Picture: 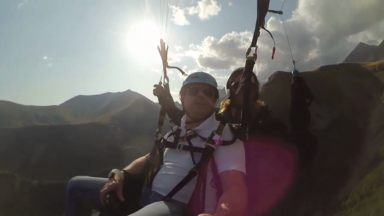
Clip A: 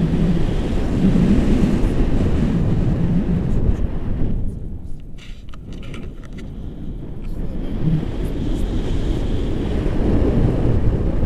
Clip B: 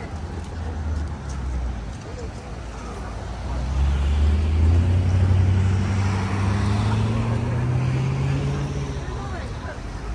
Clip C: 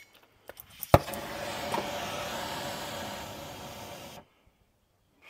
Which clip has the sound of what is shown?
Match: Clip A